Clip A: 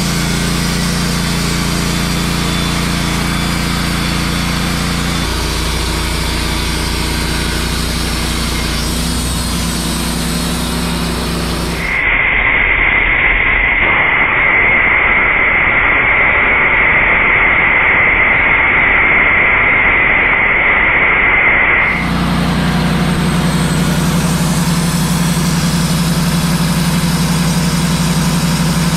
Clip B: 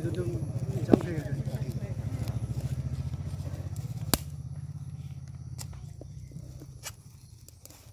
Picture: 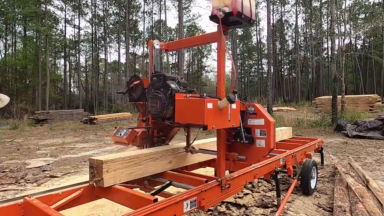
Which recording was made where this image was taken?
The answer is A